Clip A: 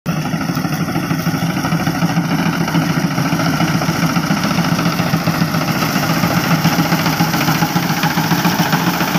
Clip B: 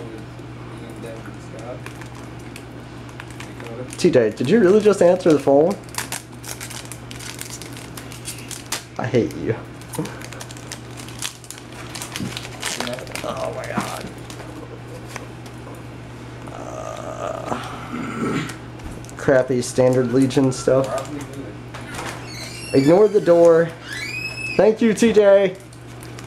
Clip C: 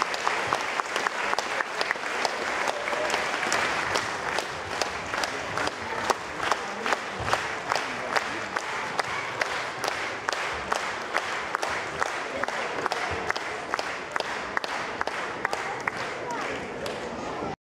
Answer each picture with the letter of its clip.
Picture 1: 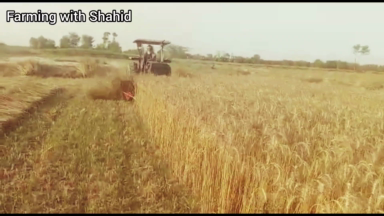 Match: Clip A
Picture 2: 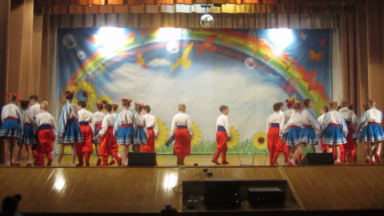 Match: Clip C